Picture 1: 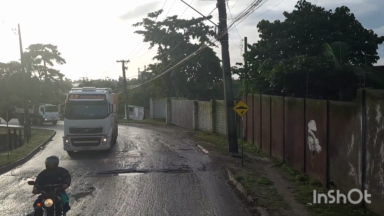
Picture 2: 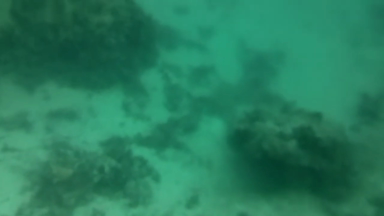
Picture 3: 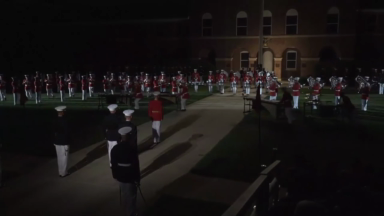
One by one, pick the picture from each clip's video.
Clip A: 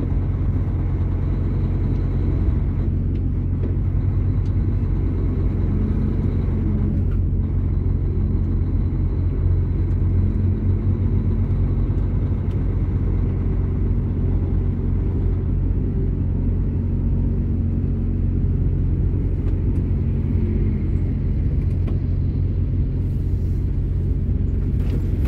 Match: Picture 1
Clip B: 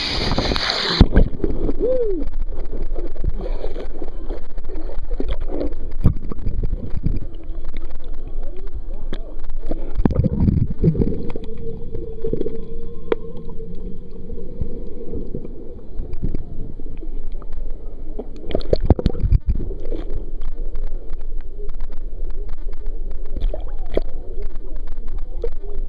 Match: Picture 2